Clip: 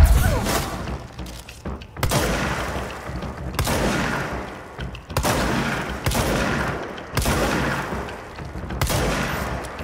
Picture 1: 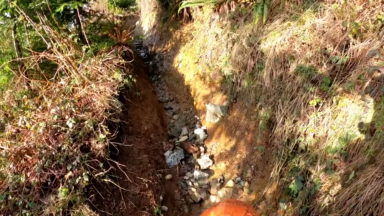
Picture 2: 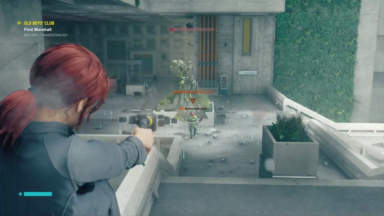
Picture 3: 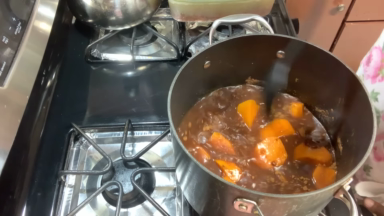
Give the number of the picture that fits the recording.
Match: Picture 2